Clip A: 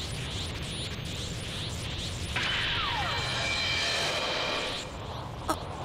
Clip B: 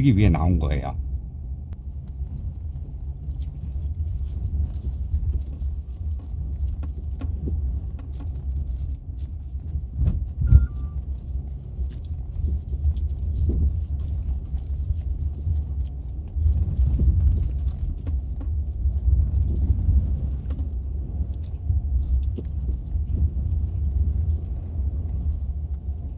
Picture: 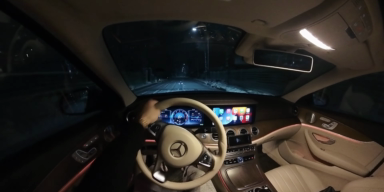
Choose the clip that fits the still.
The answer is B